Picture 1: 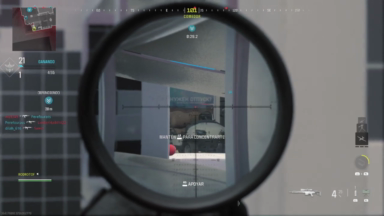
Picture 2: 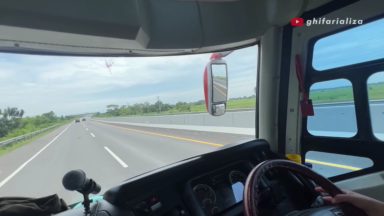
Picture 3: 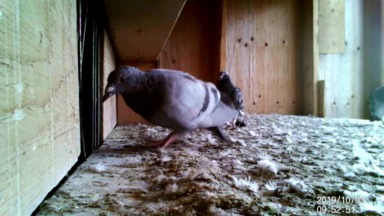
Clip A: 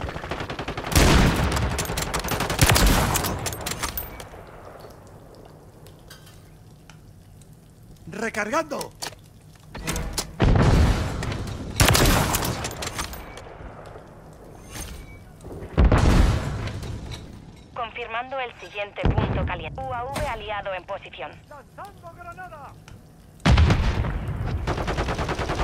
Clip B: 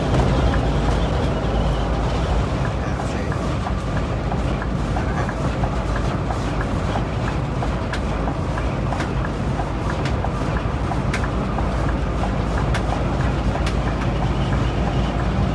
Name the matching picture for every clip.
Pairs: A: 1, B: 2